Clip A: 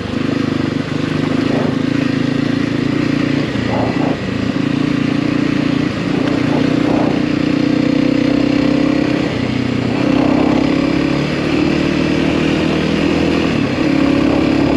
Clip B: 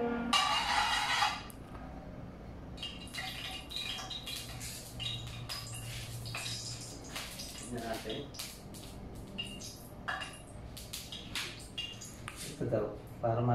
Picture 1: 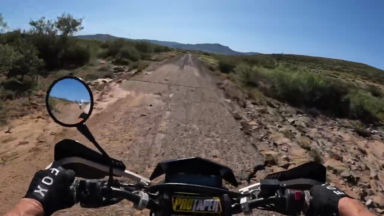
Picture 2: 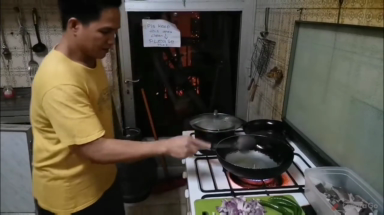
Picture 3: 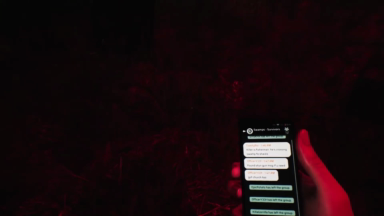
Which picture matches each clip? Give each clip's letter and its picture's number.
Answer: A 1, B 2